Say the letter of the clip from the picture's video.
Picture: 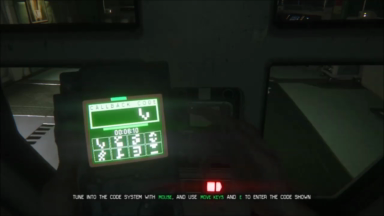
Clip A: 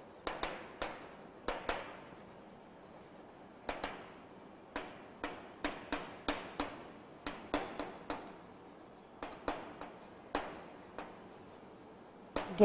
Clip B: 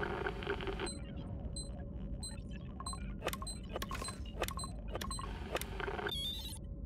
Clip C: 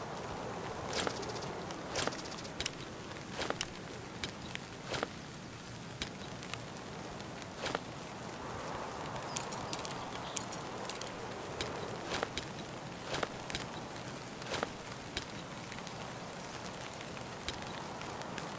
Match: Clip B